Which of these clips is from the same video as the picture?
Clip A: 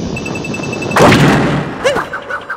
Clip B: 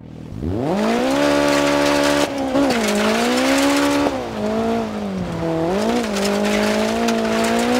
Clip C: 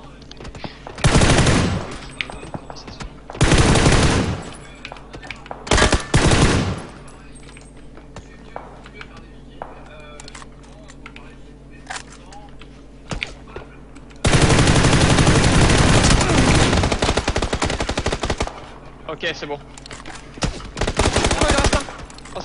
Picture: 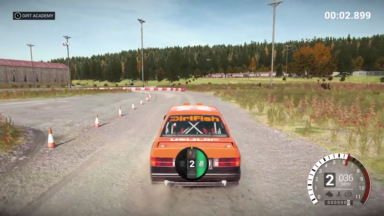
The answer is B